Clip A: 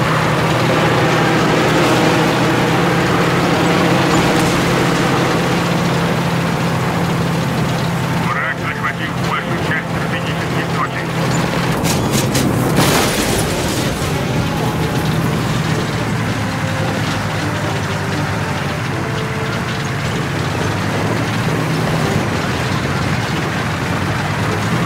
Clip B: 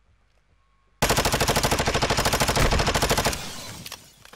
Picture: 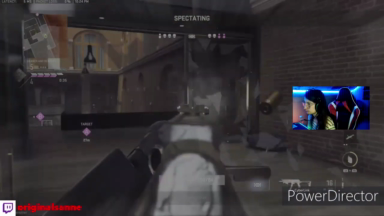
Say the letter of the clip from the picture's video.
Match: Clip B